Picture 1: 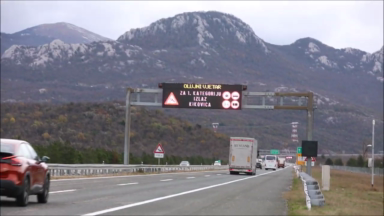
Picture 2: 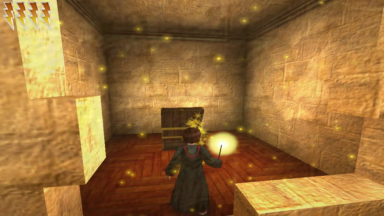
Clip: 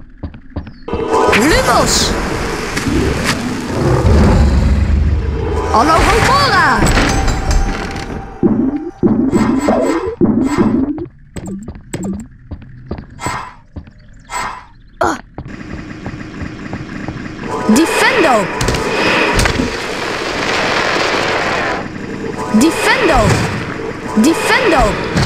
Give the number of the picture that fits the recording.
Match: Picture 2